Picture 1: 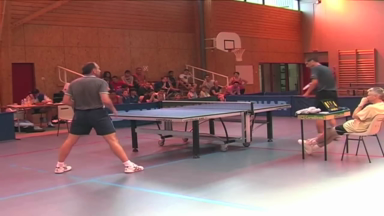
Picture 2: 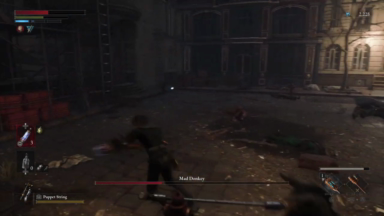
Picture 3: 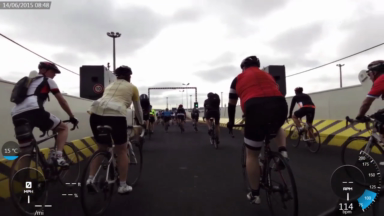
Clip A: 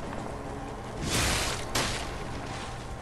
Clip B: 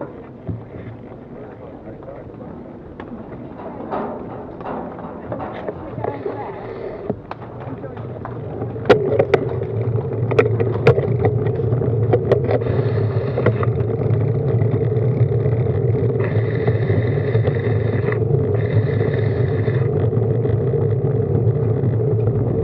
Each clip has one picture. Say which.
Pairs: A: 2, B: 3